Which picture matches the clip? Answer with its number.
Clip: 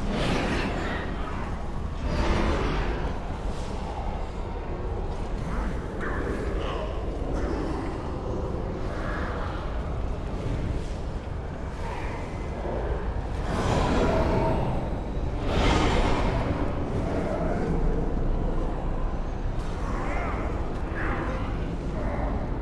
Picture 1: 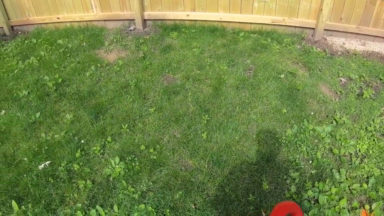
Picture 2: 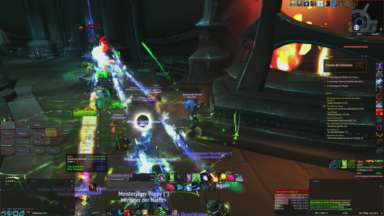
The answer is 2